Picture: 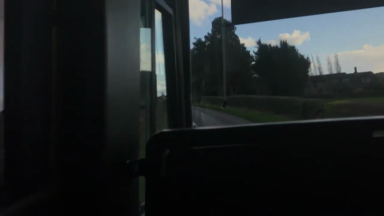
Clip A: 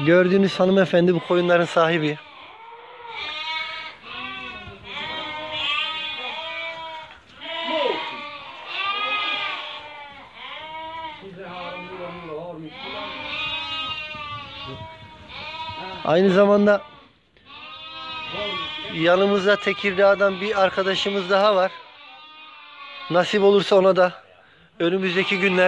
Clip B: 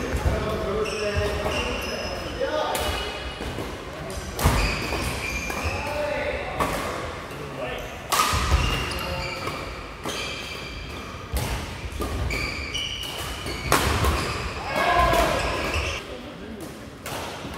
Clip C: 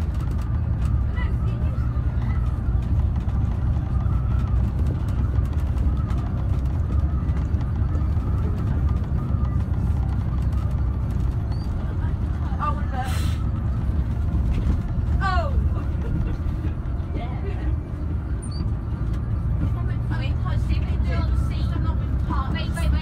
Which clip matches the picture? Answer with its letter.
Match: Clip C